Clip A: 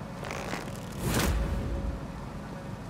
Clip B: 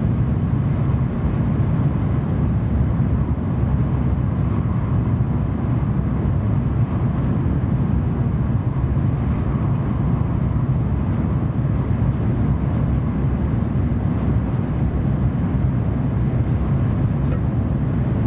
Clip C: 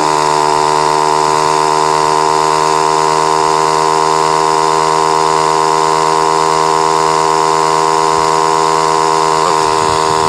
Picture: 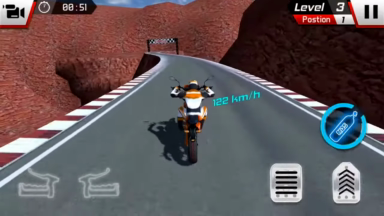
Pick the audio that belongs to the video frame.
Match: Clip C